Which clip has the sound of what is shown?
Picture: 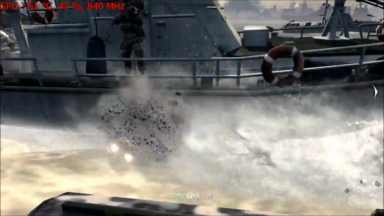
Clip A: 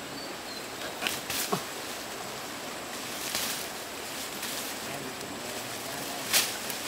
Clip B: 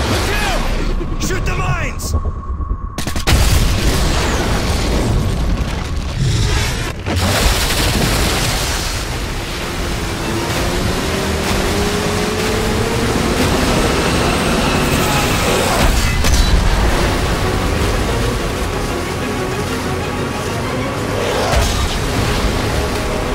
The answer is B